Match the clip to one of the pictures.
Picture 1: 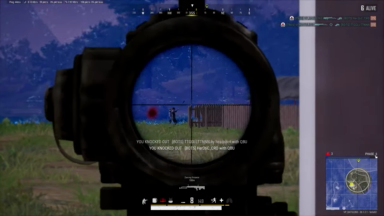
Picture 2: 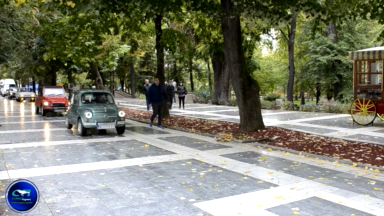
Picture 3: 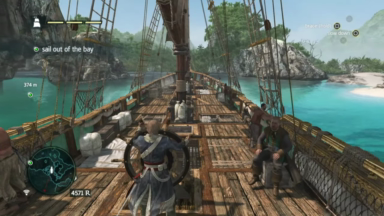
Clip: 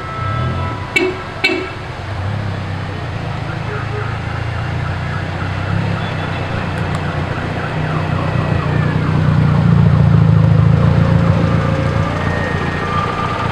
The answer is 2